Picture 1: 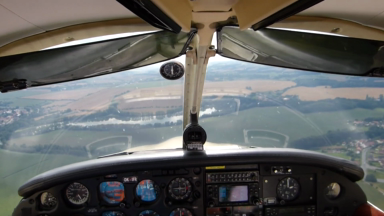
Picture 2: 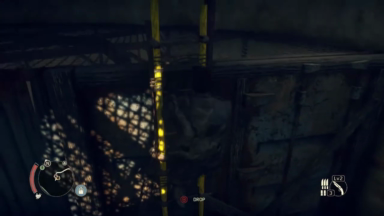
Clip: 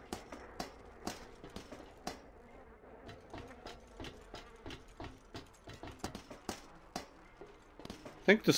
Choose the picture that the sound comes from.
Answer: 2